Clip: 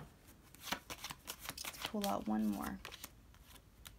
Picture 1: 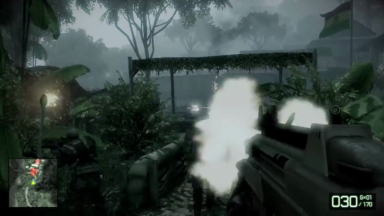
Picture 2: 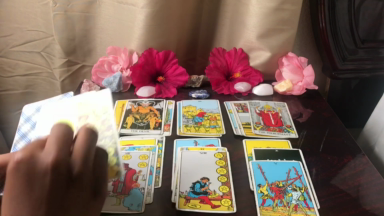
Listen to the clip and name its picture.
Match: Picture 2